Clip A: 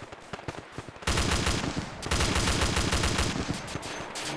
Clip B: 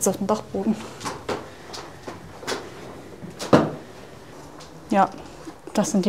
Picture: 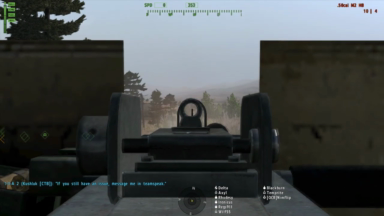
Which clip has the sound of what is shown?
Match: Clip A